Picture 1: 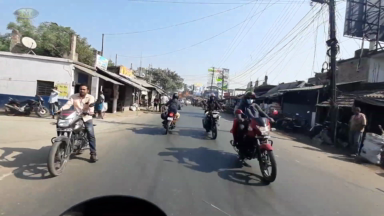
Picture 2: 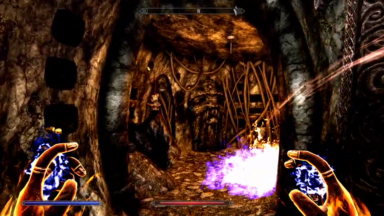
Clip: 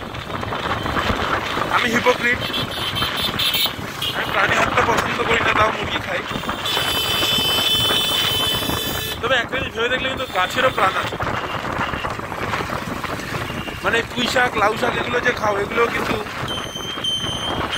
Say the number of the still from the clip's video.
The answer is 1